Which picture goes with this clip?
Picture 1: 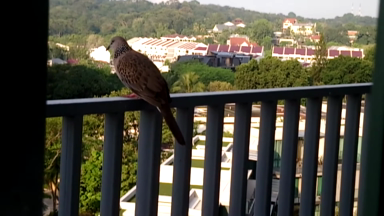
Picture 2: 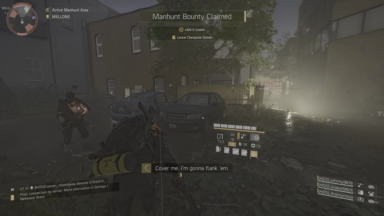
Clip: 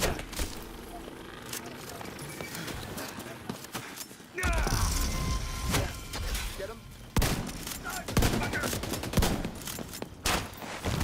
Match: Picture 2